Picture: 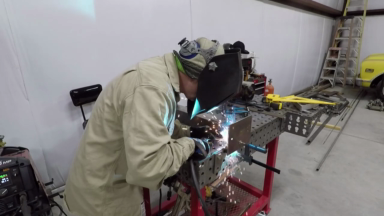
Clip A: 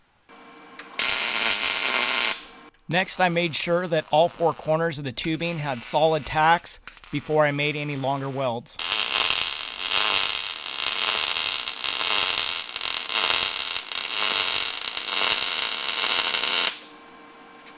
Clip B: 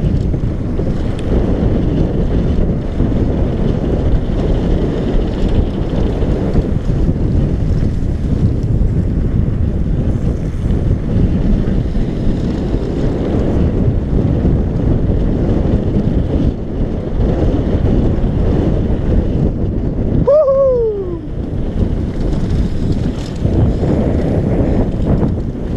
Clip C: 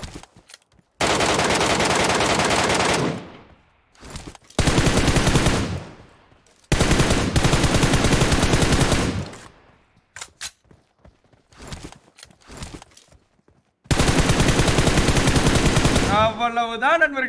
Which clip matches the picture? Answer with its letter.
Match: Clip A